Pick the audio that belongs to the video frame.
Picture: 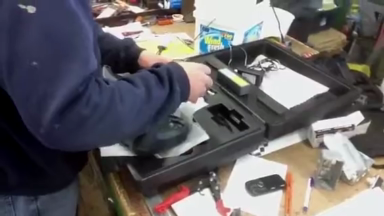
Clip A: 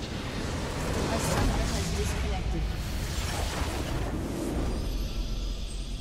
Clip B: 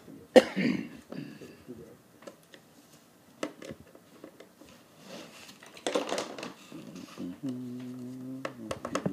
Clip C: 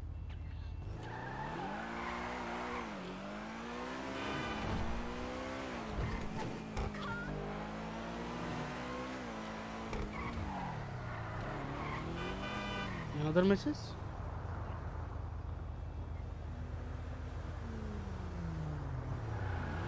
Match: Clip B